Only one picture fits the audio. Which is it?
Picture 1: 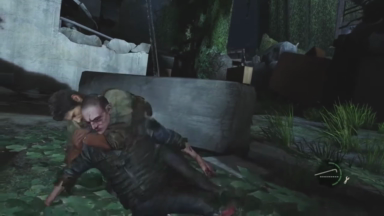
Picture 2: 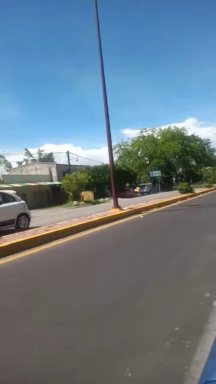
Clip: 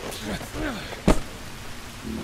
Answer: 1